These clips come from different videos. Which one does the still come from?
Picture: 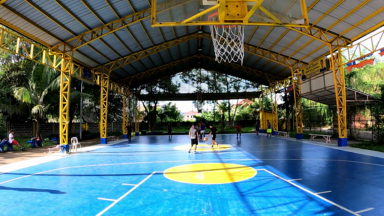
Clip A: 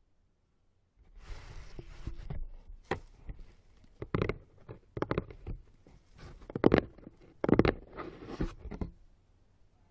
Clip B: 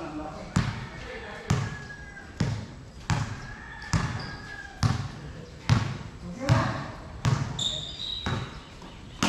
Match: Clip B